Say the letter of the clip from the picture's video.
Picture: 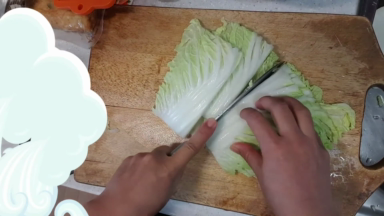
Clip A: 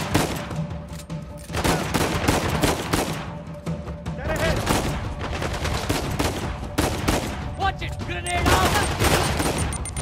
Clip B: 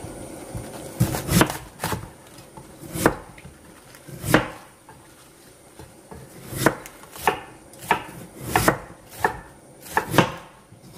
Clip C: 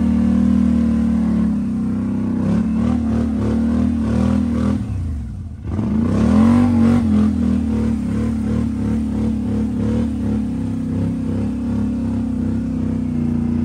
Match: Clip B